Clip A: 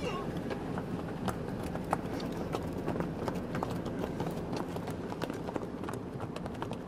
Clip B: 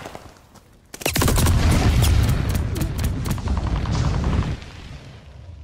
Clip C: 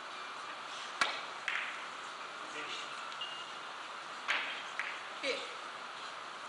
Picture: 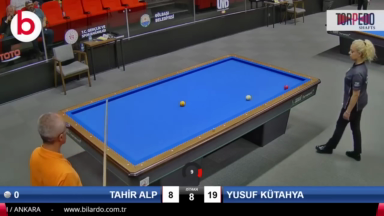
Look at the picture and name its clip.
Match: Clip C